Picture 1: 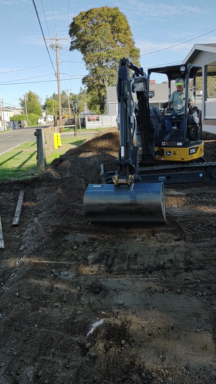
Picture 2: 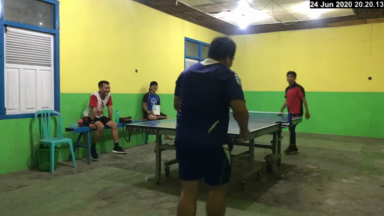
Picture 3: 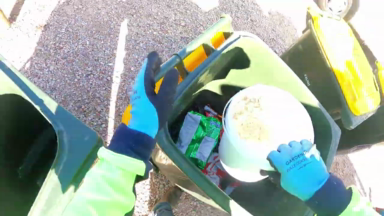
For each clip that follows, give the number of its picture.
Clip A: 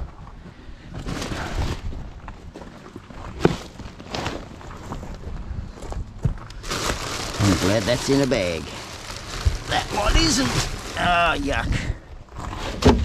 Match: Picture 3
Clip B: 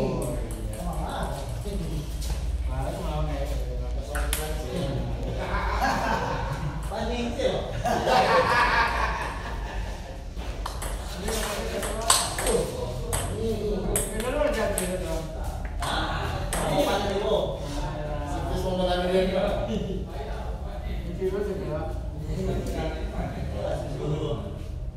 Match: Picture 2